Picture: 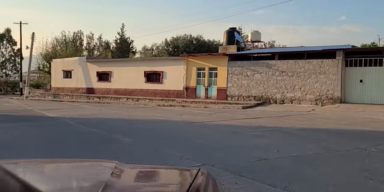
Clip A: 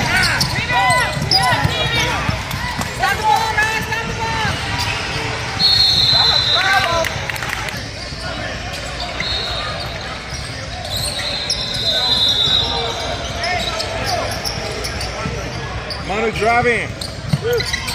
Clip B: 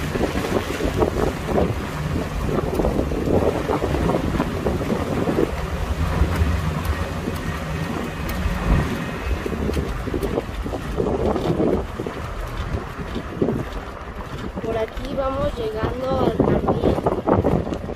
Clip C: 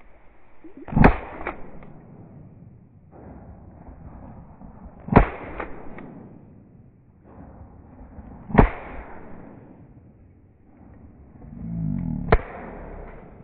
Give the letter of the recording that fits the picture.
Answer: B